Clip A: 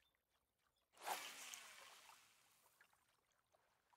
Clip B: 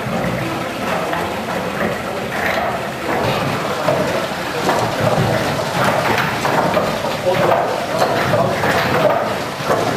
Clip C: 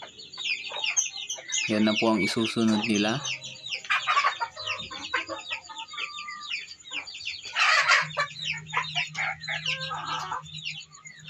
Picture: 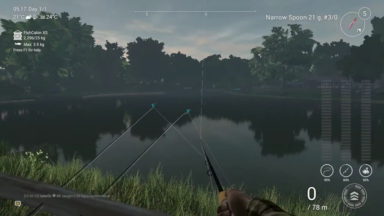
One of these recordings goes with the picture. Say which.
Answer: A